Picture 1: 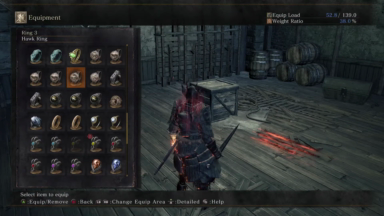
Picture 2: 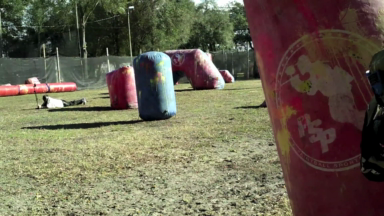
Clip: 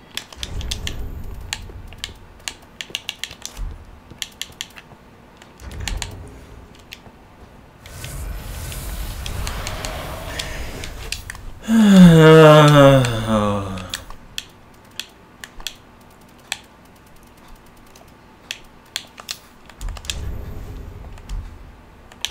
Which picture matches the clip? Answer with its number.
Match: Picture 1